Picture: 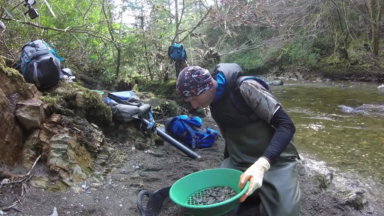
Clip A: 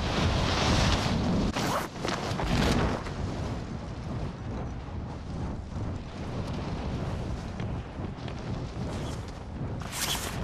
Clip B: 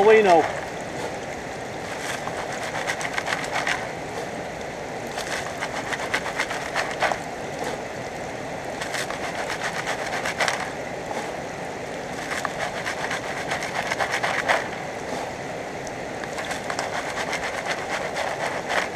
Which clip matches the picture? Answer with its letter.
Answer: B